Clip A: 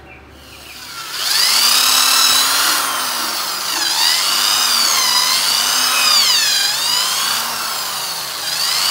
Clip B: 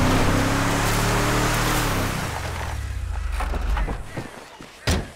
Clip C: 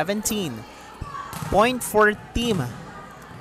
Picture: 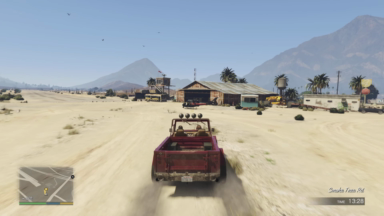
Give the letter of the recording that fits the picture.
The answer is B